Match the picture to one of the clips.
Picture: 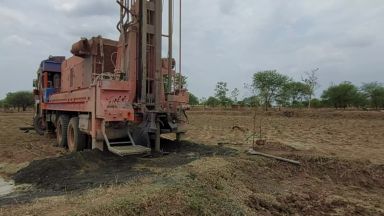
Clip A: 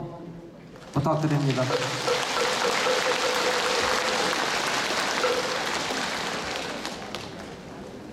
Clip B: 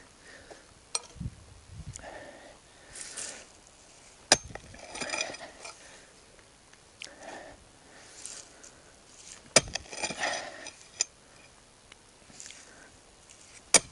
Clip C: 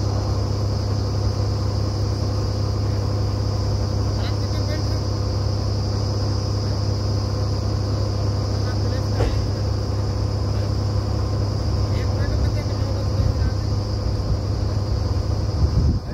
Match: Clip C